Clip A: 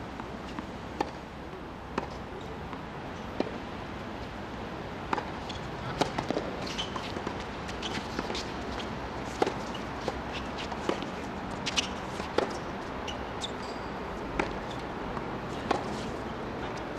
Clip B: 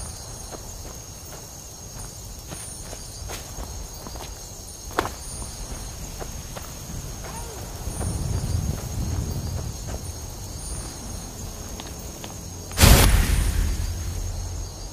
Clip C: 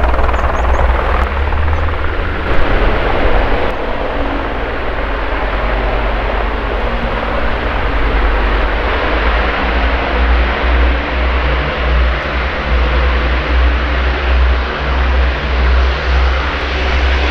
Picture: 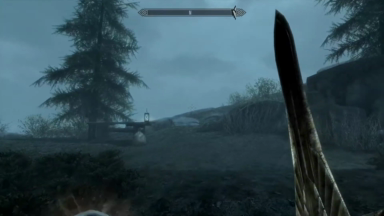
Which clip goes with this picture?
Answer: B